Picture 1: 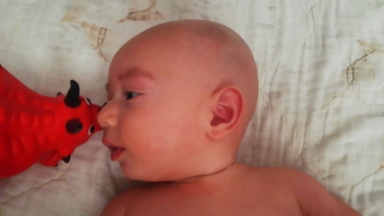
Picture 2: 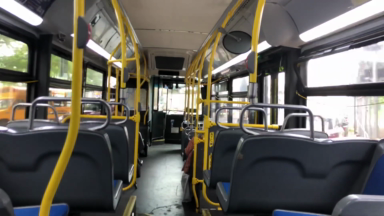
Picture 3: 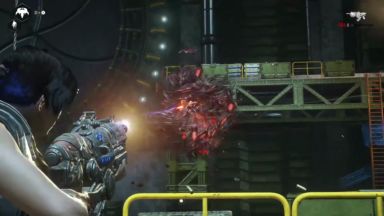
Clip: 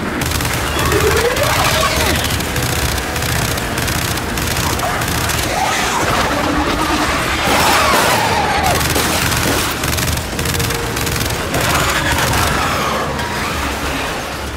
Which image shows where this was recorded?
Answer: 3